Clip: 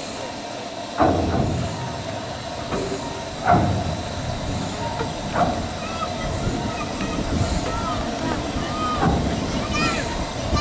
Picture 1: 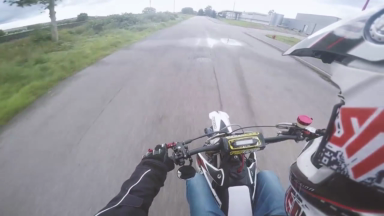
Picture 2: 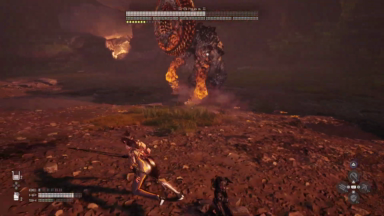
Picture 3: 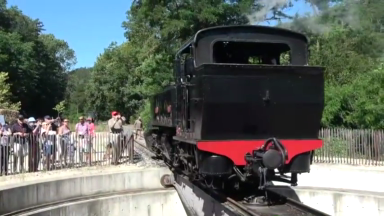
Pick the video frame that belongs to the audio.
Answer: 3